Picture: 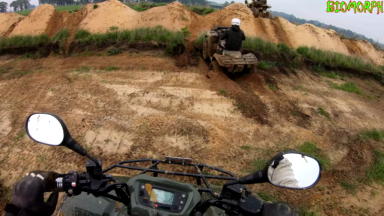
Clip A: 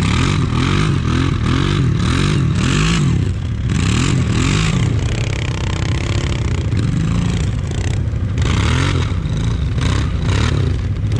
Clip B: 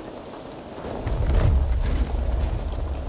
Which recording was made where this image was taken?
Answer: A